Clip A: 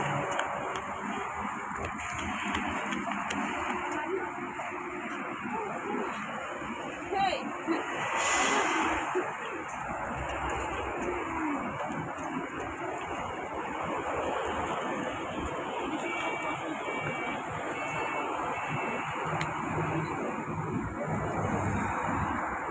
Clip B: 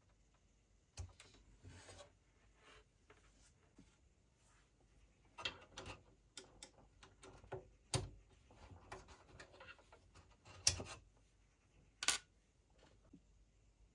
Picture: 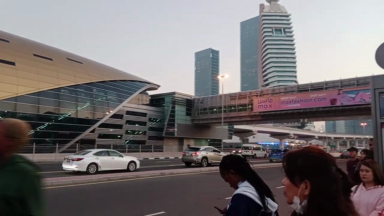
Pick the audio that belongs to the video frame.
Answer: A